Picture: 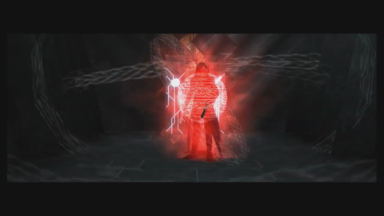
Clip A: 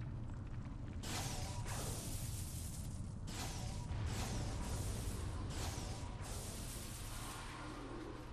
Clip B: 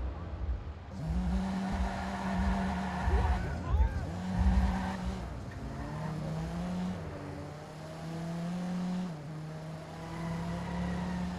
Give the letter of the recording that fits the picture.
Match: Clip A